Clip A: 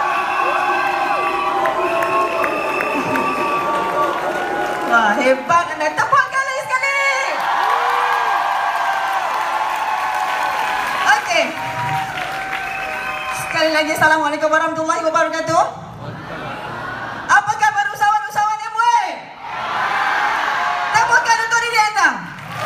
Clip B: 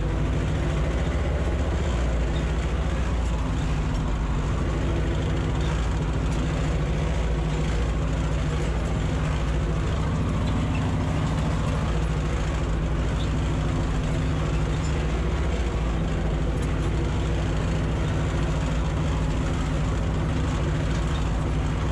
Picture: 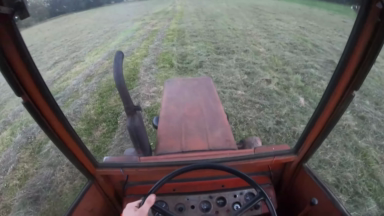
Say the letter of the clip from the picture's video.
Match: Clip B